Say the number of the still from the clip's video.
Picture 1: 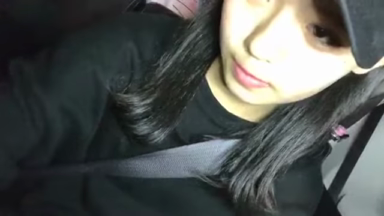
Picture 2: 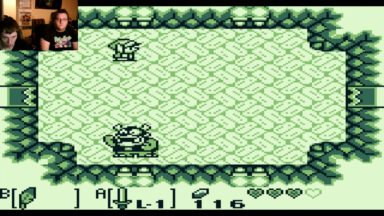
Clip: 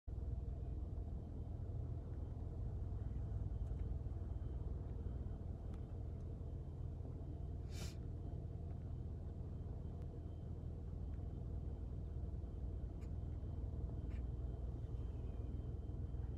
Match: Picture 1